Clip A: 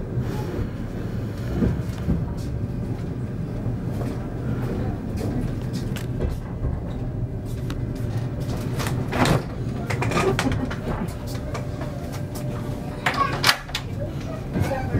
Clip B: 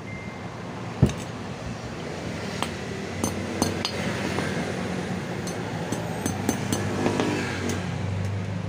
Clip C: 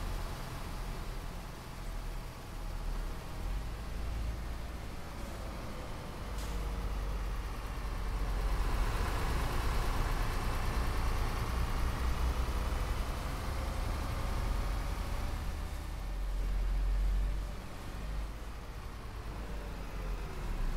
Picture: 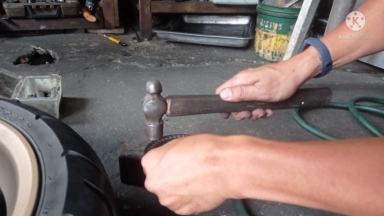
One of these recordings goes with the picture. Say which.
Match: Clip B